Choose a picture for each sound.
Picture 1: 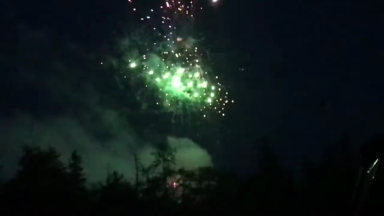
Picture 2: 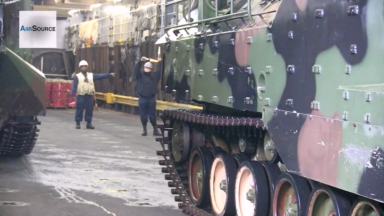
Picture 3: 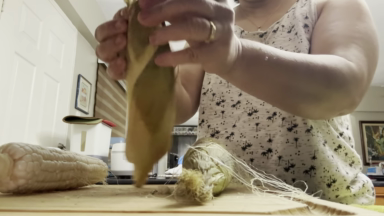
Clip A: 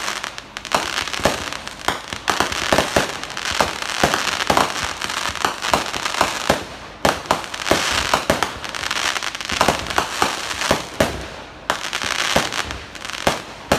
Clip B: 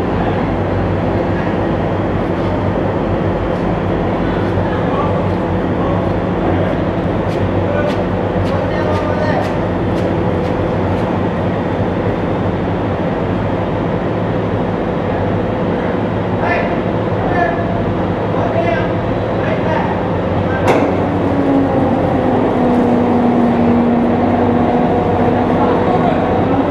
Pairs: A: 1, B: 2